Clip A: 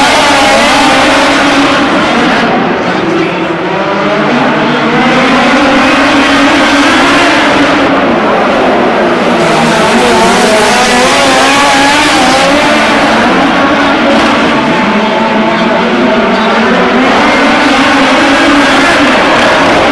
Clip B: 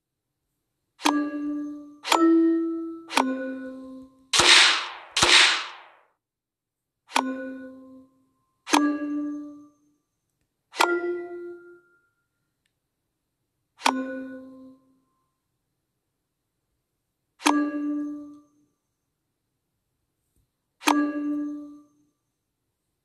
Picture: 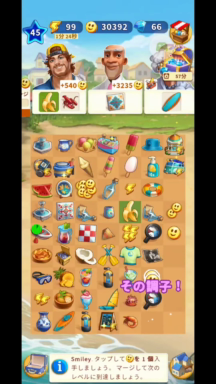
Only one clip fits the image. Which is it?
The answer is B